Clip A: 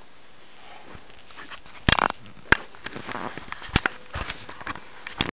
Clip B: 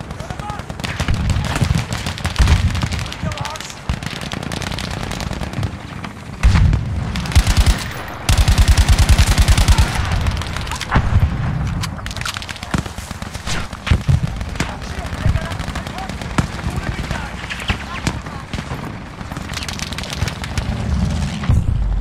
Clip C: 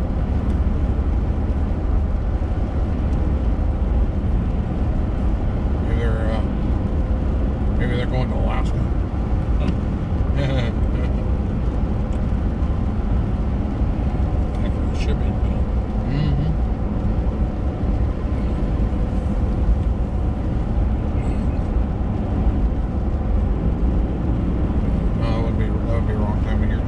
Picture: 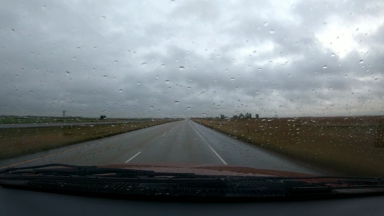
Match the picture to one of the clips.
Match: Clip C